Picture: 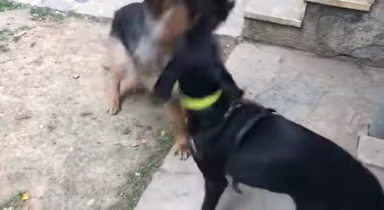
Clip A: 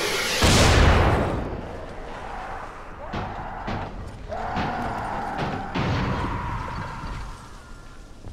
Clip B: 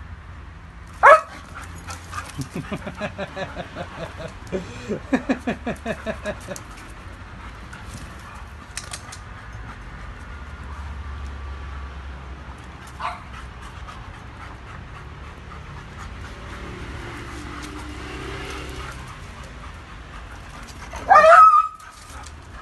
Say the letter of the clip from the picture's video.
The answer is B